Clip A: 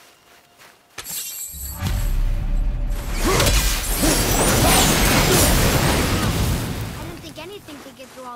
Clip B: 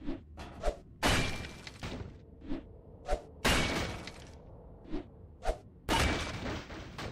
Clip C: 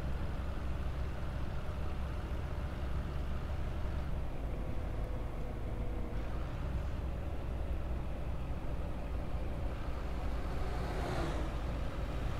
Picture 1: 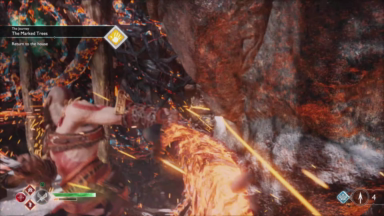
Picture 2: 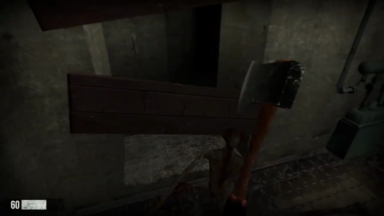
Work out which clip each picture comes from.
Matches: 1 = A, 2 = B